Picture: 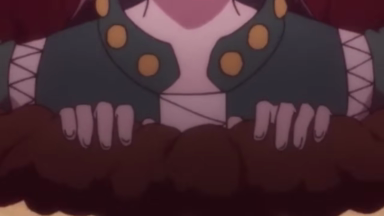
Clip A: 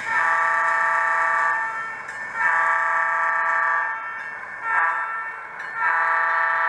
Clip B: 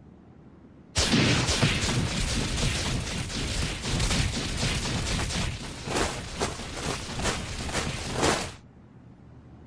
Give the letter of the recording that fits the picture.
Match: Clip B